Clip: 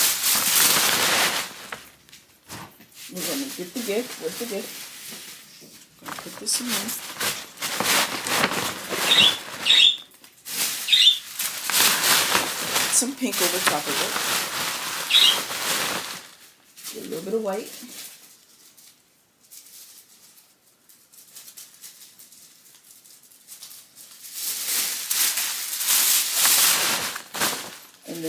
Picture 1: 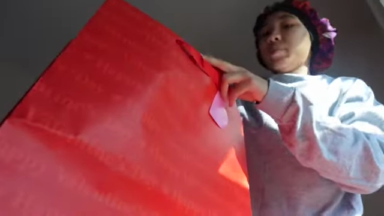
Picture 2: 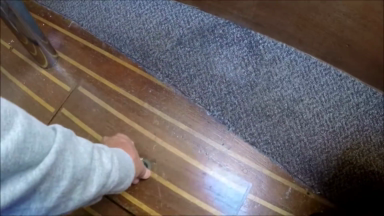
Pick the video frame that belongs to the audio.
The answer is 1